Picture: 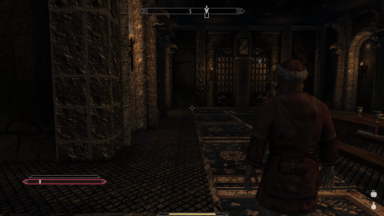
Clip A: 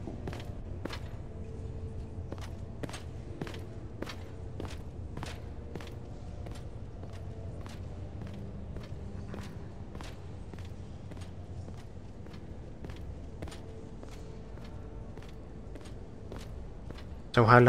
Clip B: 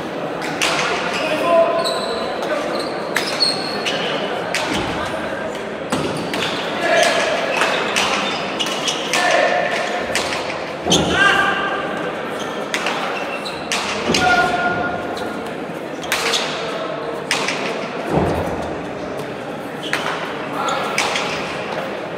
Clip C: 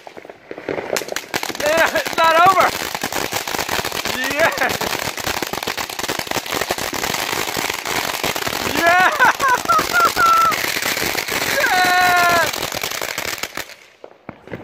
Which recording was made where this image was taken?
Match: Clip A